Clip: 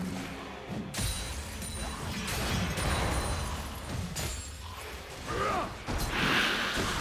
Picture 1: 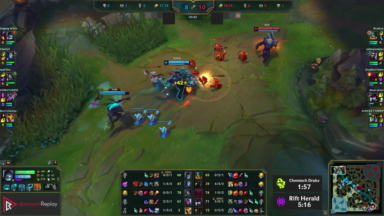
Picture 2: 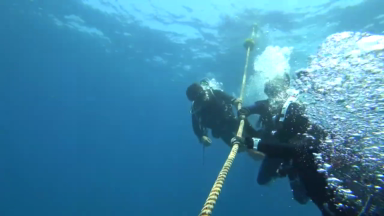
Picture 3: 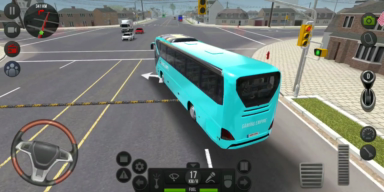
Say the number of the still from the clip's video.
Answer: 1